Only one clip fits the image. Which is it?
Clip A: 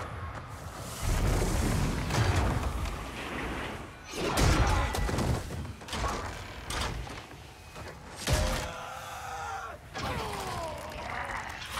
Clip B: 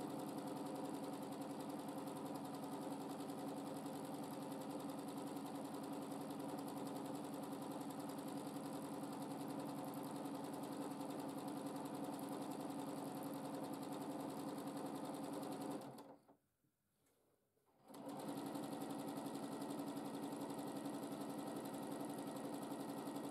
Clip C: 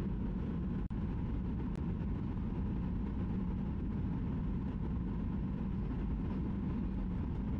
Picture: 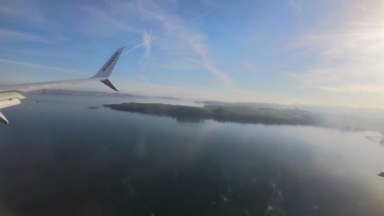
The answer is C